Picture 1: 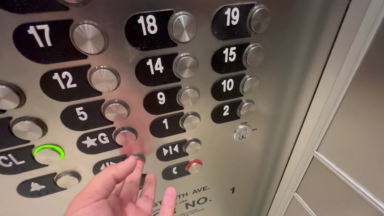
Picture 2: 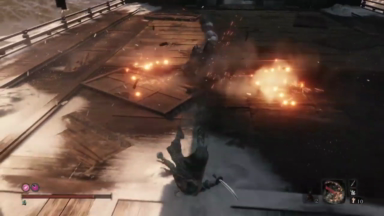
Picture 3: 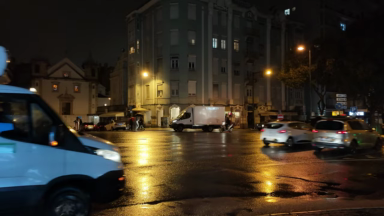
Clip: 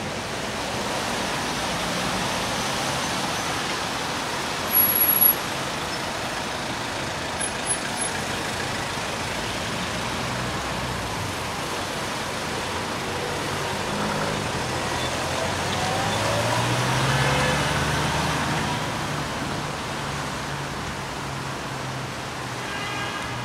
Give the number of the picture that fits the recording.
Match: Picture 3